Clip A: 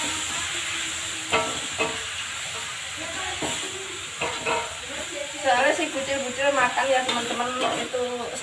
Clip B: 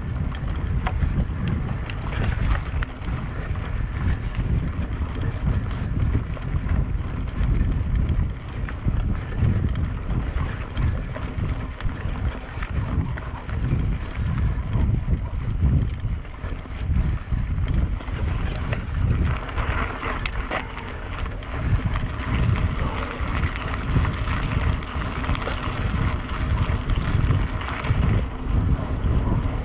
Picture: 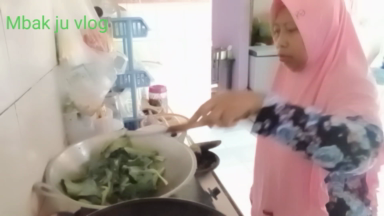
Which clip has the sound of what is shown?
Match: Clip A